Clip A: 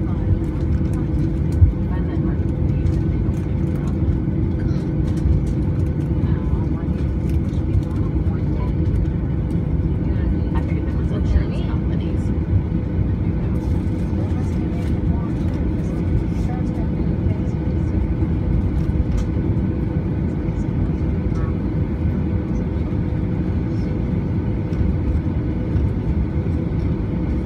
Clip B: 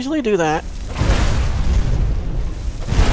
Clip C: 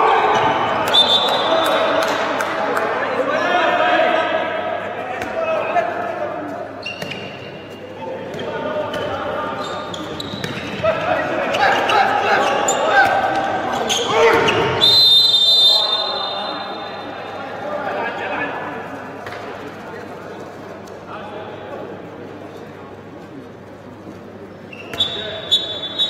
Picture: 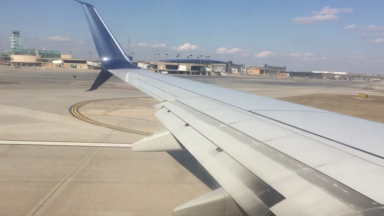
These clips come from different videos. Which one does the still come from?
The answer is A